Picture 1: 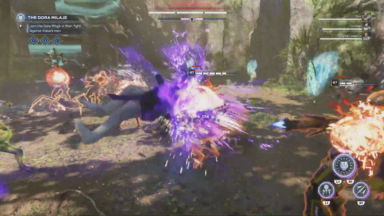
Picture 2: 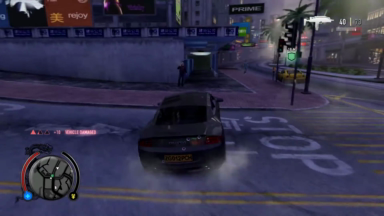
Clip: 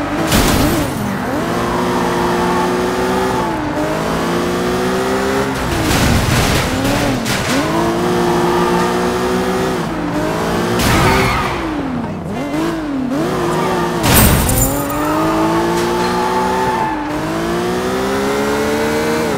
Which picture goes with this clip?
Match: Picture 2